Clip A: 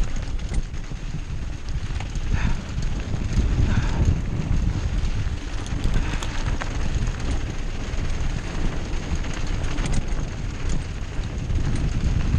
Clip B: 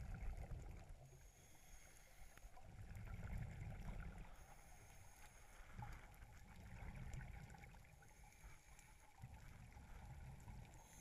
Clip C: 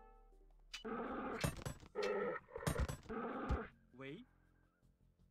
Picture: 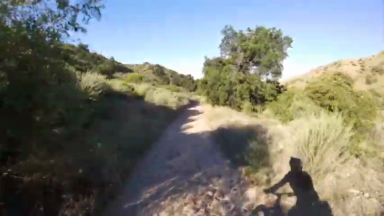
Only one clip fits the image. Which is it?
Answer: A